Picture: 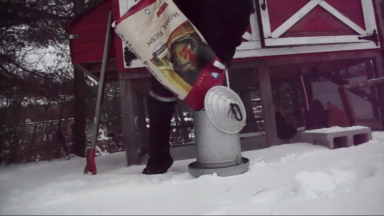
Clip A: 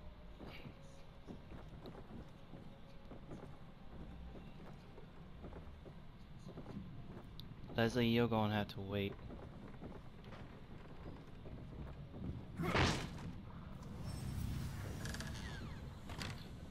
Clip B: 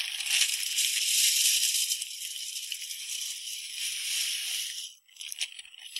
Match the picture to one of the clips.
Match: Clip B